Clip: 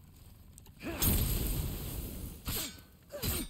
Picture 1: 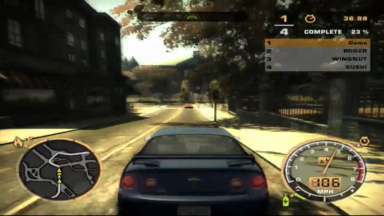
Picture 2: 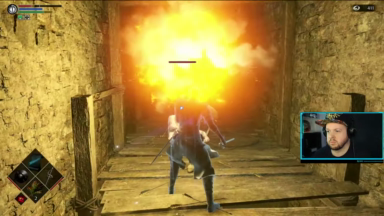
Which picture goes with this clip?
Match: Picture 2